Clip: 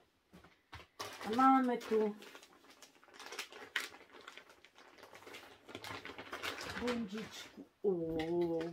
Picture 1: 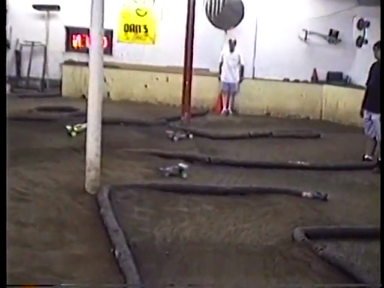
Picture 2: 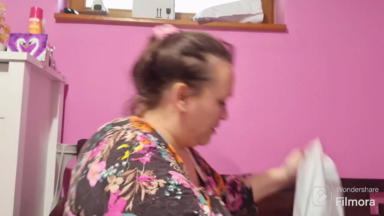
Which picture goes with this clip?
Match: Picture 2